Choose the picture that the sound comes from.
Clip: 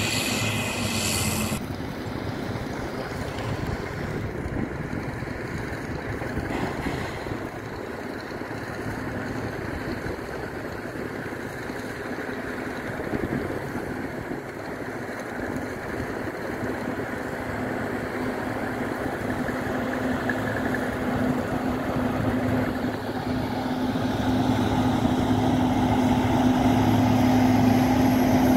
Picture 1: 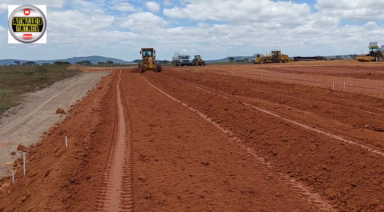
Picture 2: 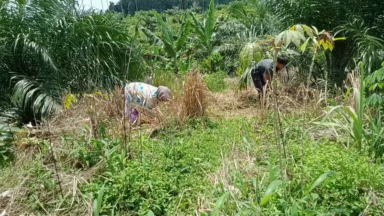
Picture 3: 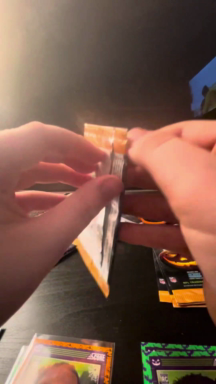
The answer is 1